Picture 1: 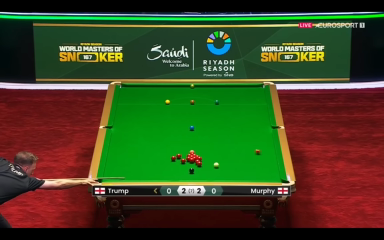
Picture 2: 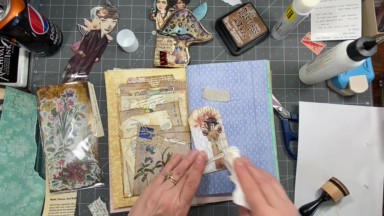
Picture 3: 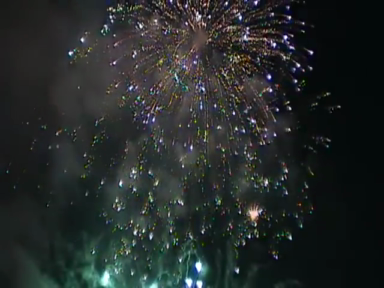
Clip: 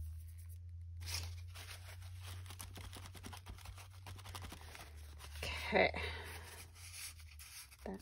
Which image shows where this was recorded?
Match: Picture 2